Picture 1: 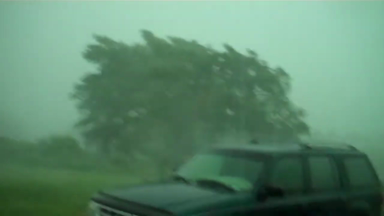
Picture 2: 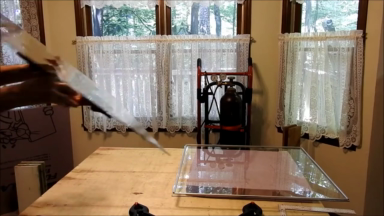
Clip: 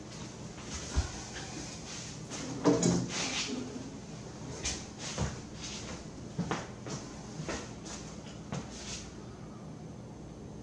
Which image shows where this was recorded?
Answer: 2